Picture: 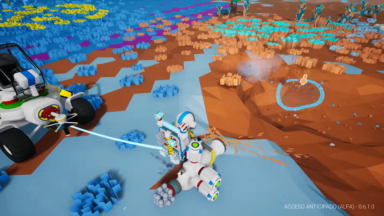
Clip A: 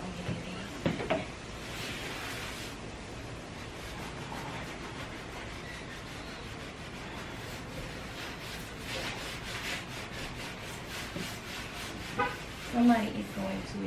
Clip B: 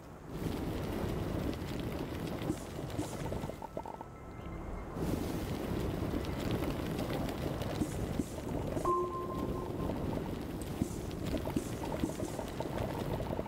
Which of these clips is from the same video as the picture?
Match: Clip B